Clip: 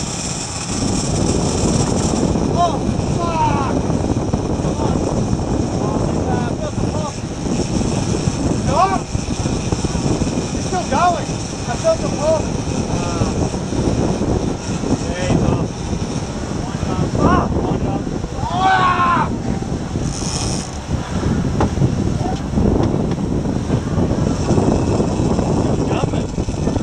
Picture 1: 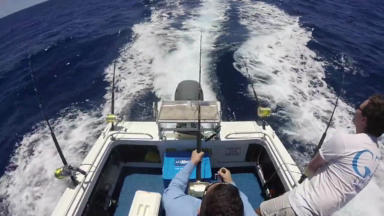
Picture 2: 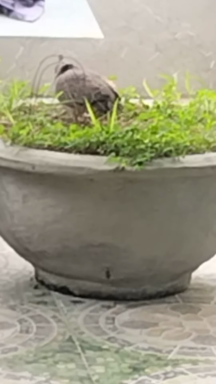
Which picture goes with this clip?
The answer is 1